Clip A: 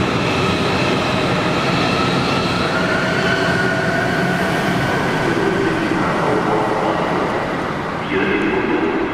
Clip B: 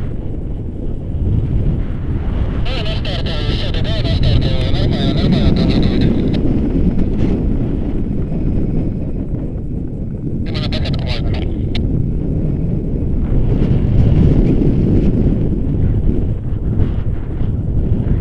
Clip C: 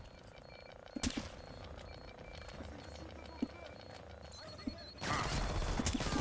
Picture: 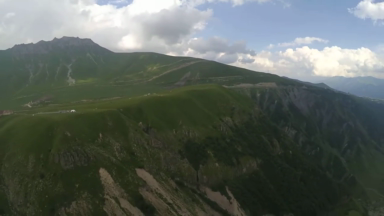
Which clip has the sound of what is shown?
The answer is B